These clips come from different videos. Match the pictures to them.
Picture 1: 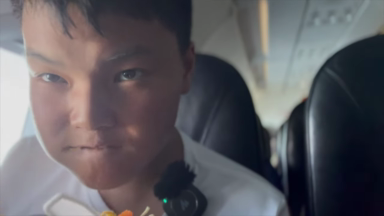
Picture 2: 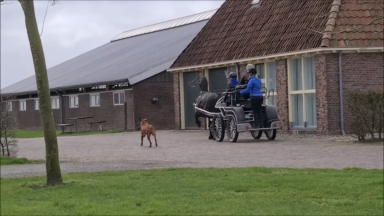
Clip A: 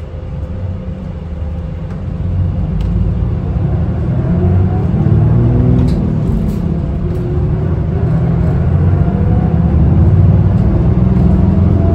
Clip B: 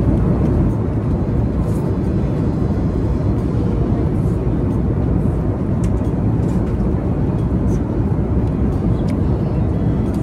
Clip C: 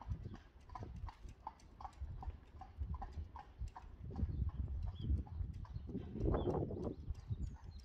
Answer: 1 B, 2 C